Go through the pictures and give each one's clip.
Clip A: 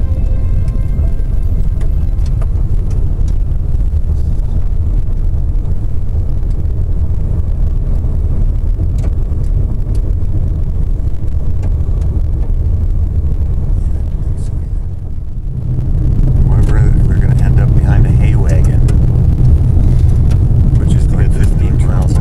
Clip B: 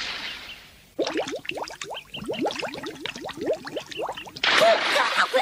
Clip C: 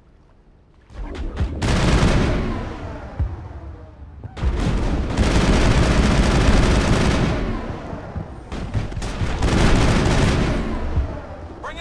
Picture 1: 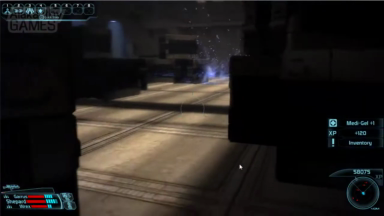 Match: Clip C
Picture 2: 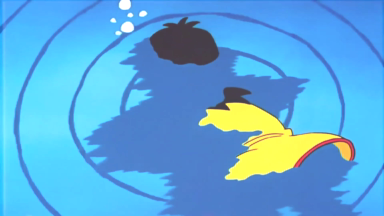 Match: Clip B